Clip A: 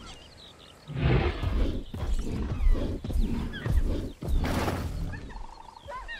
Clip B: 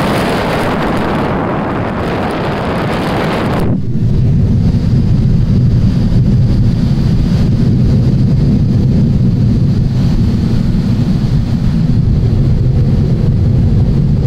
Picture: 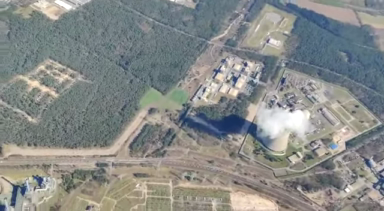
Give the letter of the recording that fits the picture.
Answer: B